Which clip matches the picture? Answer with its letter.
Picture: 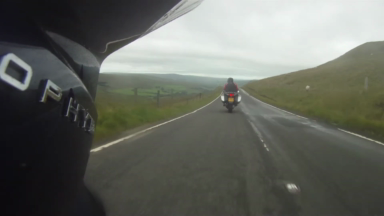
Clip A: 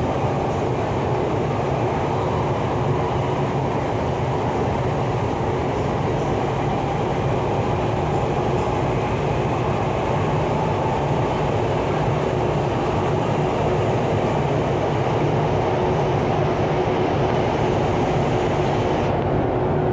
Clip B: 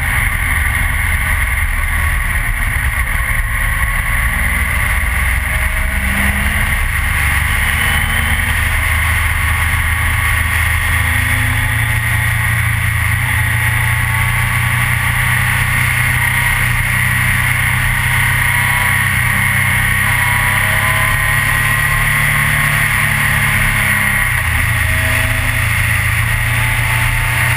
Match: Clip B